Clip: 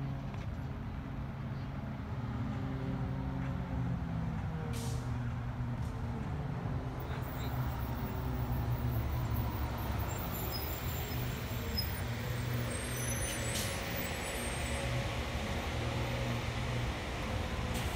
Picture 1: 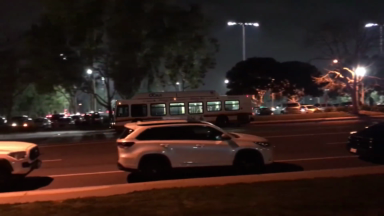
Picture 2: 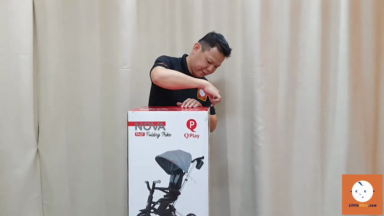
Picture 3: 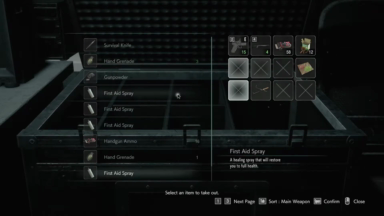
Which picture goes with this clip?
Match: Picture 1